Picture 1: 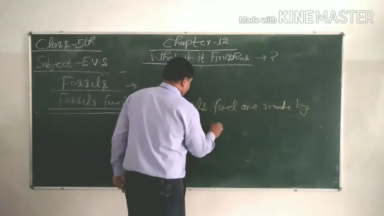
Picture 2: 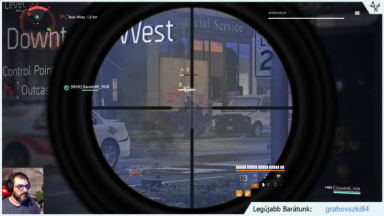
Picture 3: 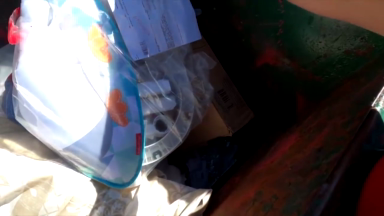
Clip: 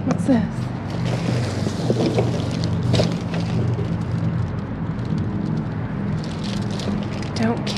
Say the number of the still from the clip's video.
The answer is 3